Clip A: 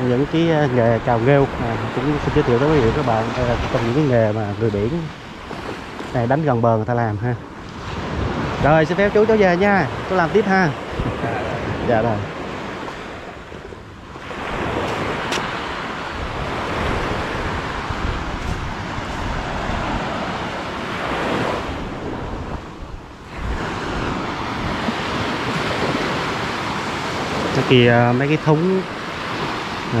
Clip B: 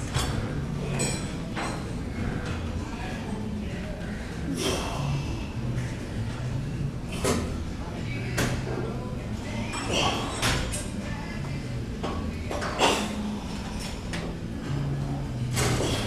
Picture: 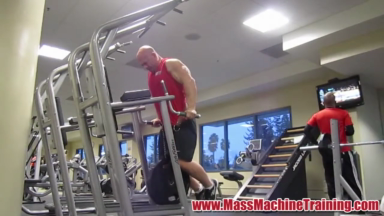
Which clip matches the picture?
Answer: B